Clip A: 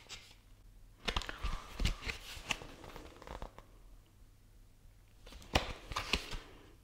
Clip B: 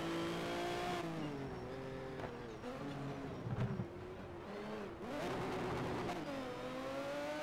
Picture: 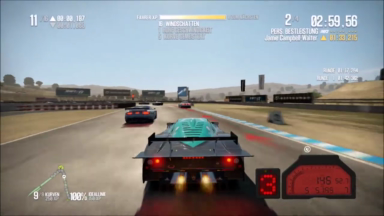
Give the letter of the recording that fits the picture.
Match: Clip B